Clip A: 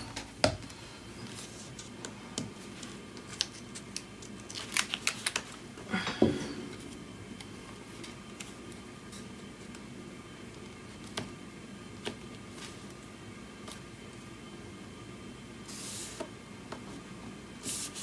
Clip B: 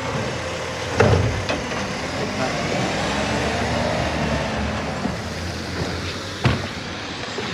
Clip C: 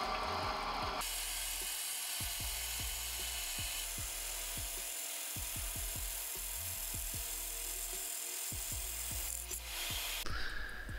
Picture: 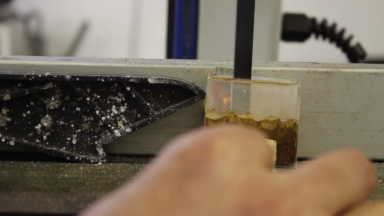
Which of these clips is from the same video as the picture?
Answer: C